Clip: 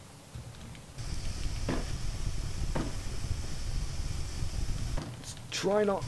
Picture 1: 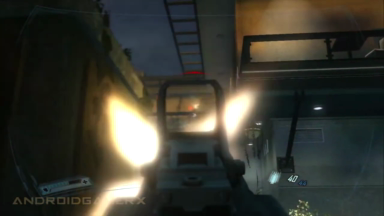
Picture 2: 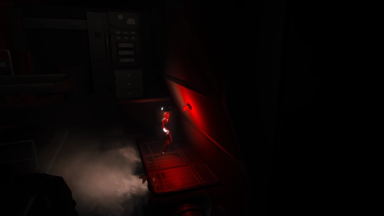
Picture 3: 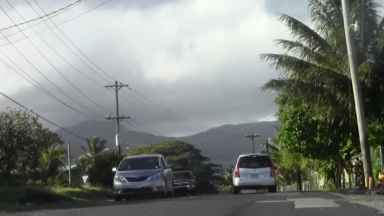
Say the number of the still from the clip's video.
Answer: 2